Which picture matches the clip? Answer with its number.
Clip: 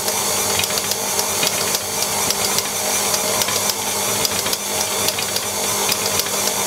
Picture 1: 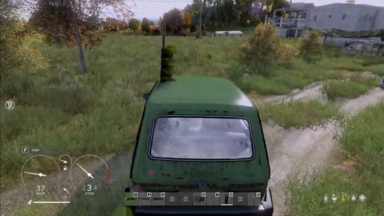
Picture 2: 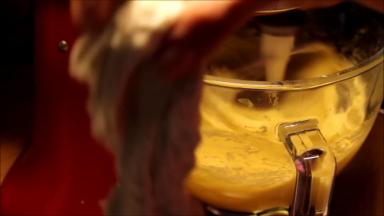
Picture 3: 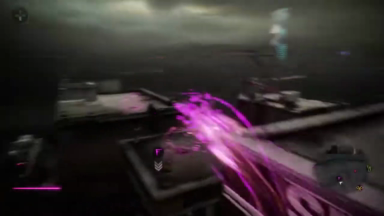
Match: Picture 2